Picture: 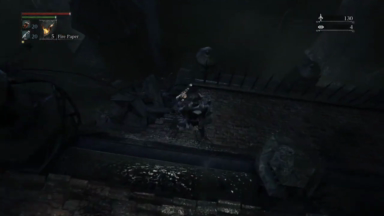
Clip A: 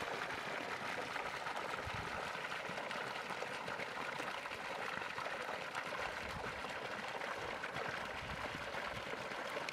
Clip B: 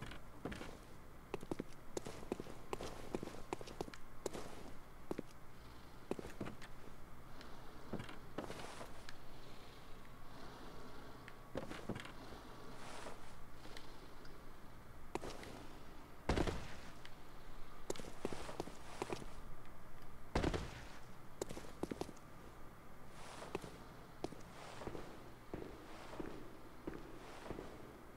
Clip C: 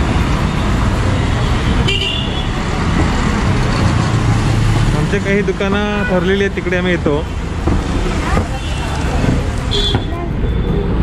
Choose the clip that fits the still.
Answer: B